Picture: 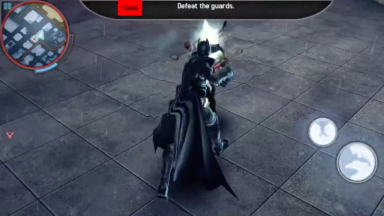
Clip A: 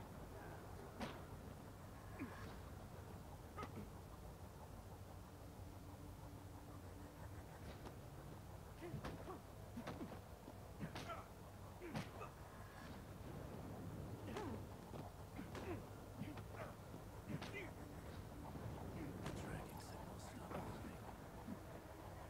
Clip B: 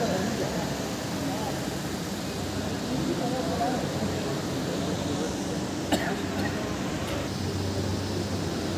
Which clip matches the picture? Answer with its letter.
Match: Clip A